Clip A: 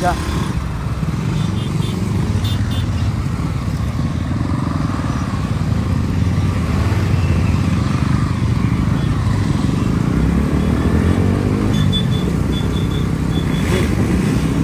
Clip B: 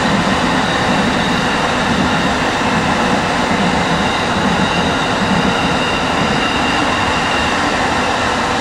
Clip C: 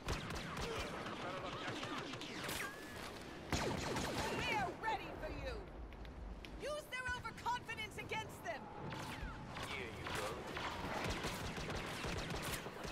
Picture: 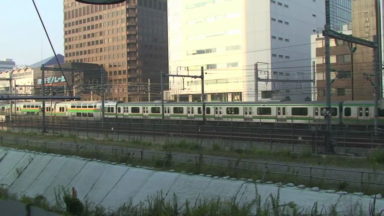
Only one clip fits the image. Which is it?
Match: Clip B